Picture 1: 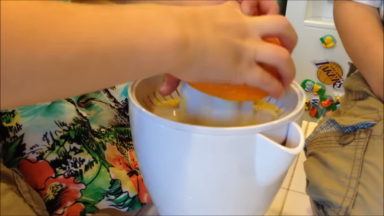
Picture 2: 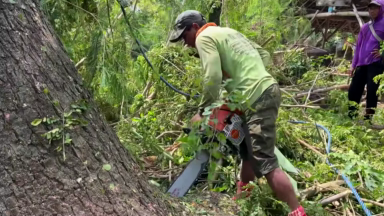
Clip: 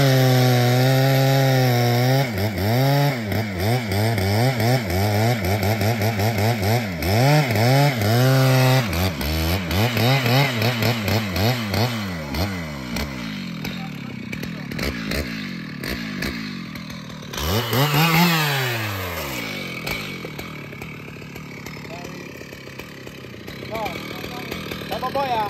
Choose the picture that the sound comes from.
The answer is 2